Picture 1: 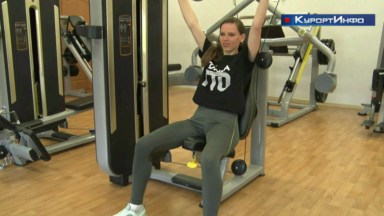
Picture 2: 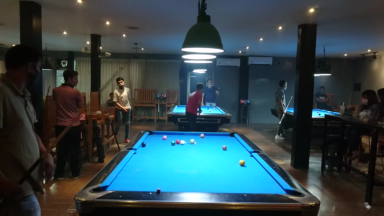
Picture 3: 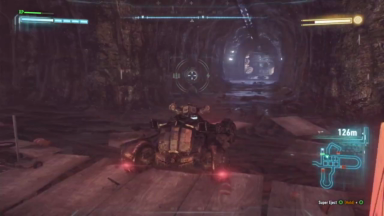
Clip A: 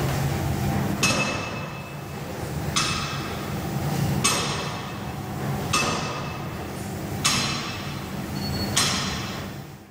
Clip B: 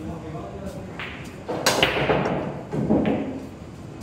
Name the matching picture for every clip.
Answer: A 1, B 2